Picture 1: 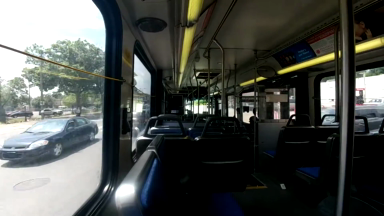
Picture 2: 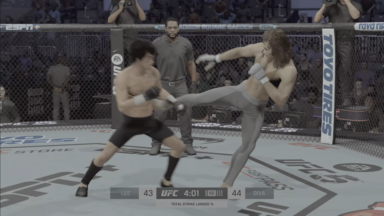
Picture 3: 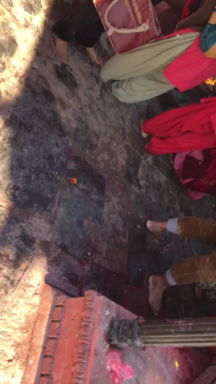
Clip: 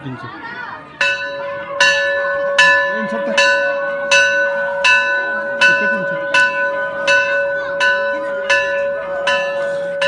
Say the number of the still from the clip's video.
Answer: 3